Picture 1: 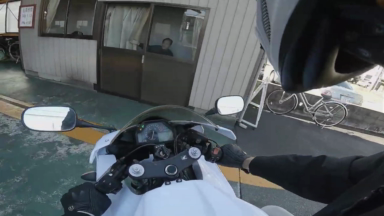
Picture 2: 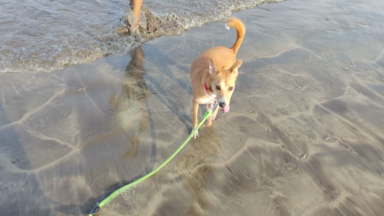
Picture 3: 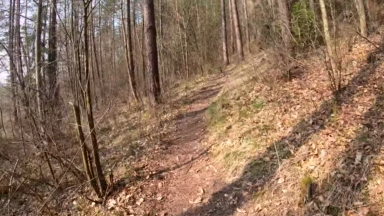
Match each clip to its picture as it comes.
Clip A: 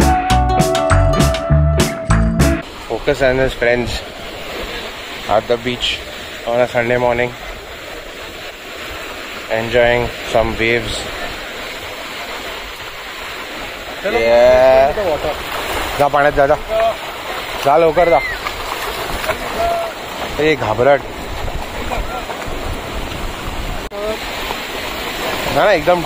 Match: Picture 2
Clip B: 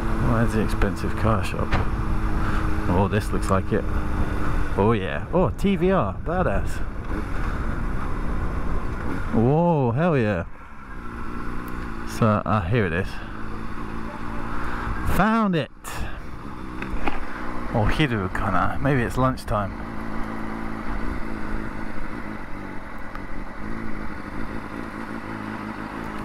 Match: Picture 1